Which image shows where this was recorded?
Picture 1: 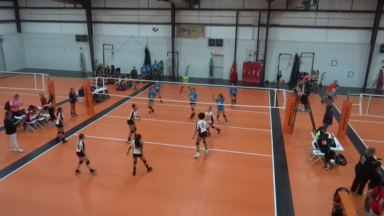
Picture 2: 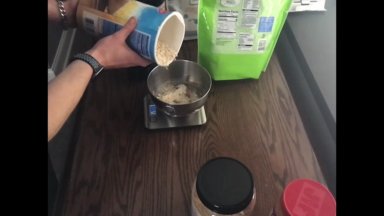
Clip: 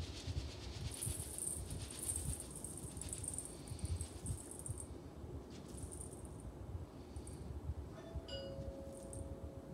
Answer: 2